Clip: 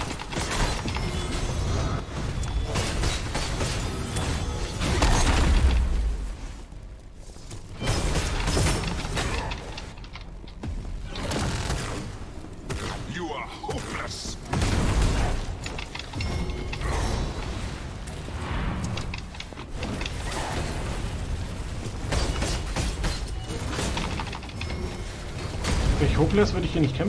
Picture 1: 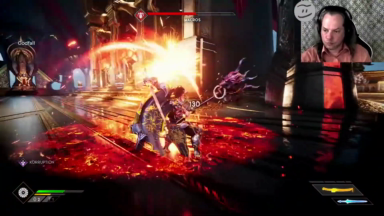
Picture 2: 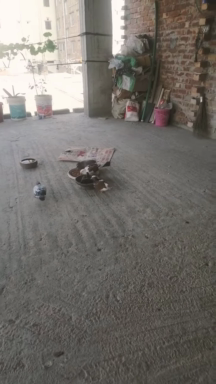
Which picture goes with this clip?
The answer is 1